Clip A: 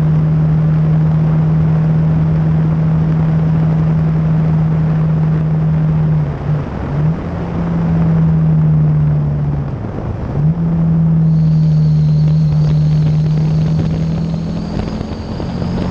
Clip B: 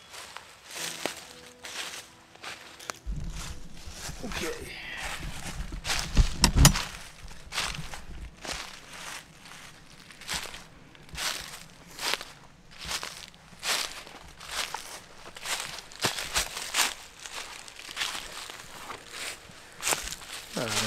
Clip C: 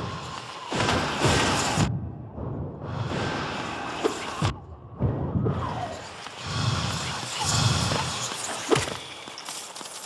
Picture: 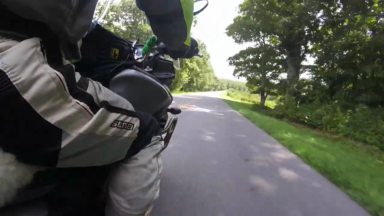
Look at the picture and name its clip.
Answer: A